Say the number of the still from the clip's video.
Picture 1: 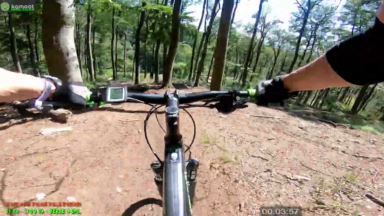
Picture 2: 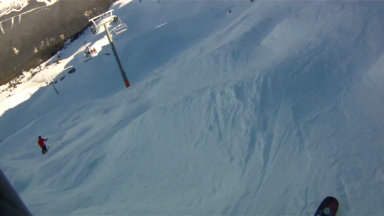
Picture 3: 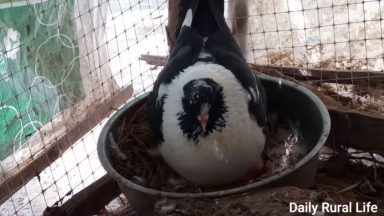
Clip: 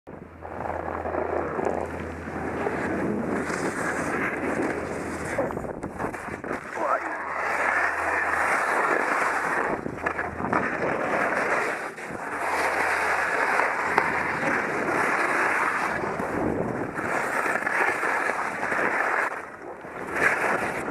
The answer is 2